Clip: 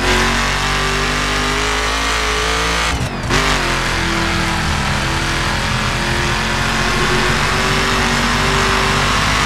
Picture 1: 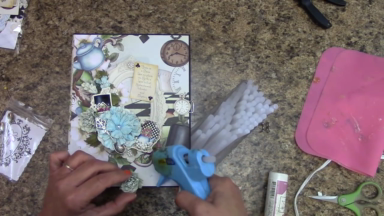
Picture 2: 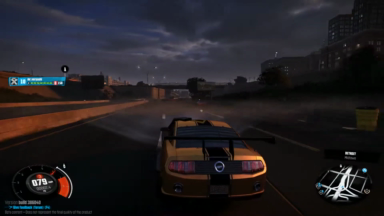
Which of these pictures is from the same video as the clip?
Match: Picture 2